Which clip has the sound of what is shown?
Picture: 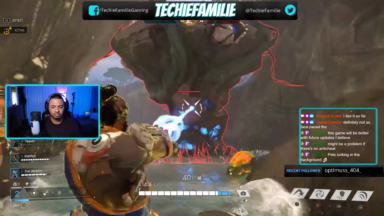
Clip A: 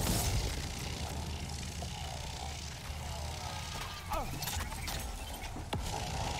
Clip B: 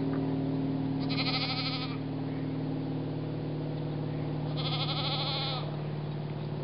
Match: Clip A